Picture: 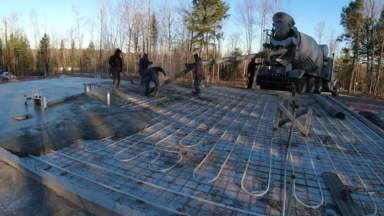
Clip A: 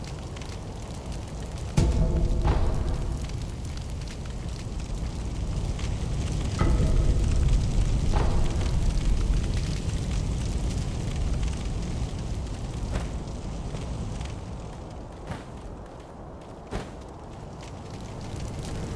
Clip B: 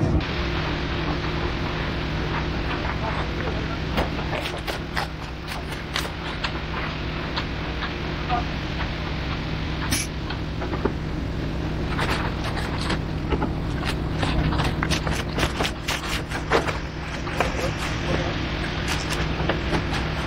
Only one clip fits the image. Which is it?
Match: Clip B